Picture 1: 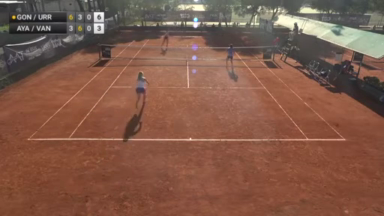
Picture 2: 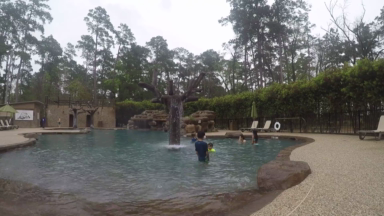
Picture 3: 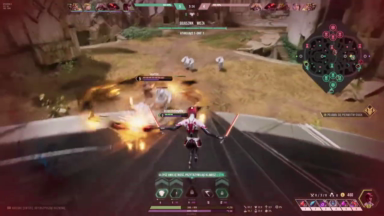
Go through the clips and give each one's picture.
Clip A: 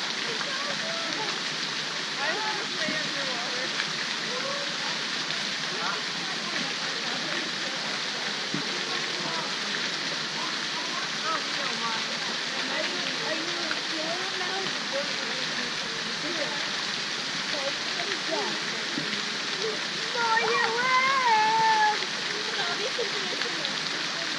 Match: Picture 2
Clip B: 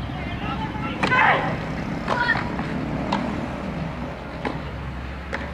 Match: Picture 1